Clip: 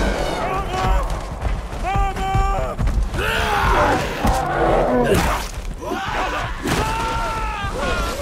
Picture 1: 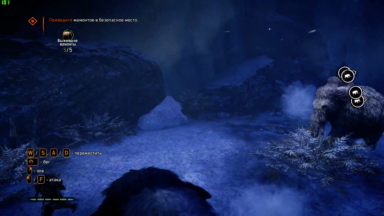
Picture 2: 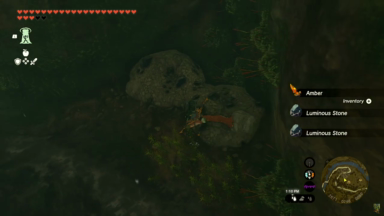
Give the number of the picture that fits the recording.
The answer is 1